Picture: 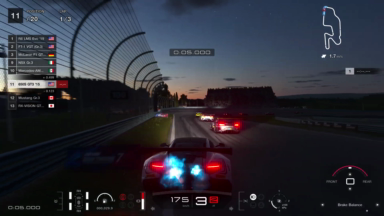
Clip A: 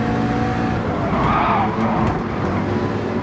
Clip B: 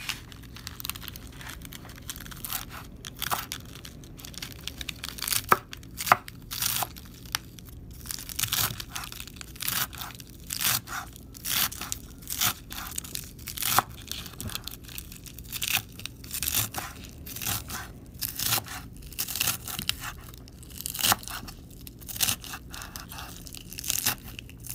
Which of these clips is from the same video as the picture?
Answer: A